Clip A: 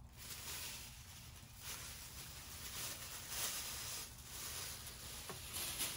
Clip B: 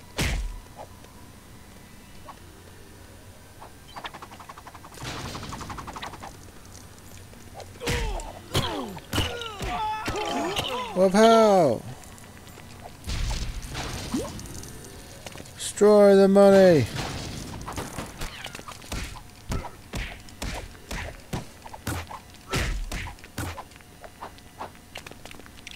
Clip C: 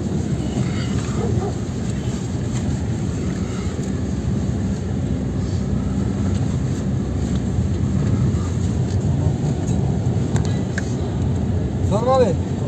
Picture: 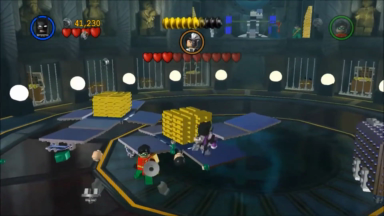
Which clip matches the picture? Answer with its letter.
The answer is B